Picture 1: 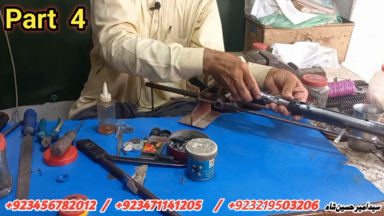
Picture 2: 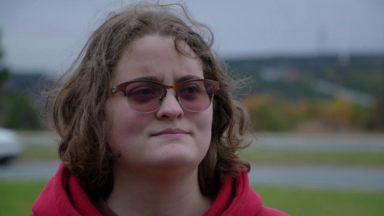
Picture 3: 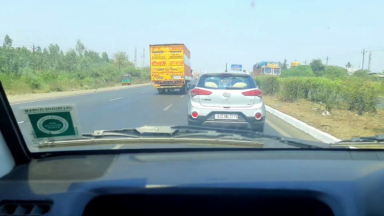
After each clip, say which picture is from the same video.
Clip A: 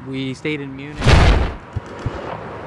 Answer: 2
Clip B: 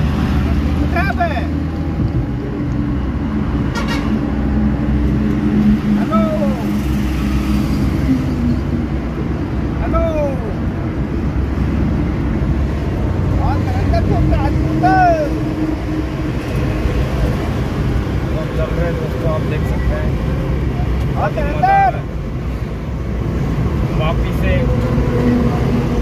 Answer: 3